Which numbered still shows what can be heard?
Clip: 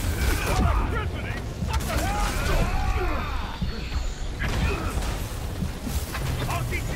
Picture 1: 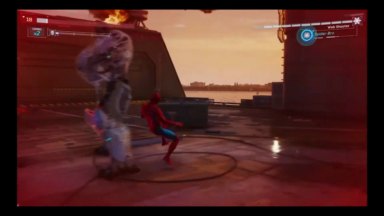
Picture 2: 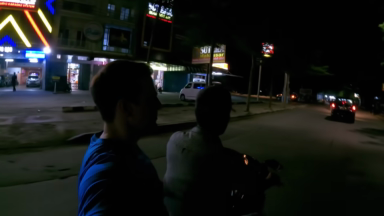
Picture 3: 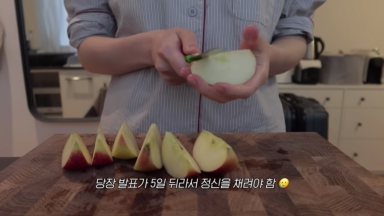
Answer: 1